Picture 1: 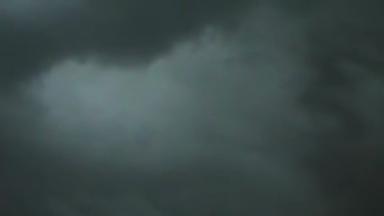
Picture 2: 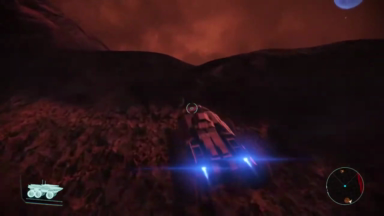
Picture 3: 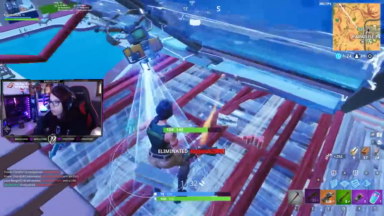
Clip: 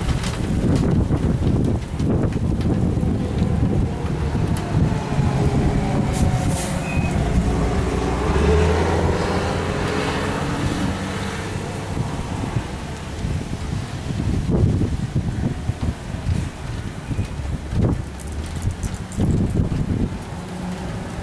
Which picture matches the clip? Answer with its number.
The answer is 1